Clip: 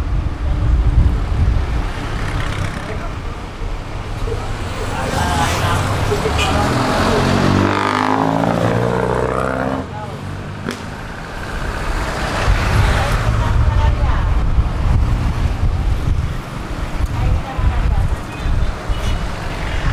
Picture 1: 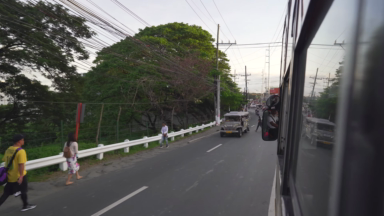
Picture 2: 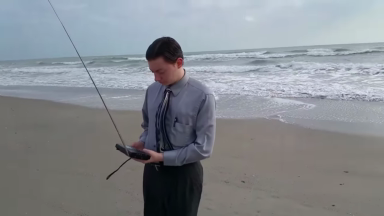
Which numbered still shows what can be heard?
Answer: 1